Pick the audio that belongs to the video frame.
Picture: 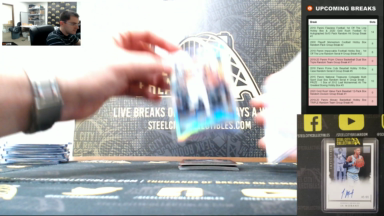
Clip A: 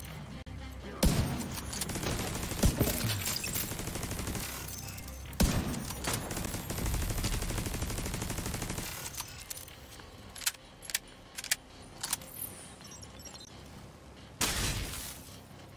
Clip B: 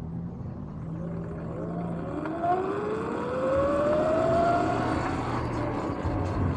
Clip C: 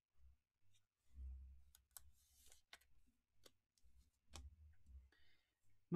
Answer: C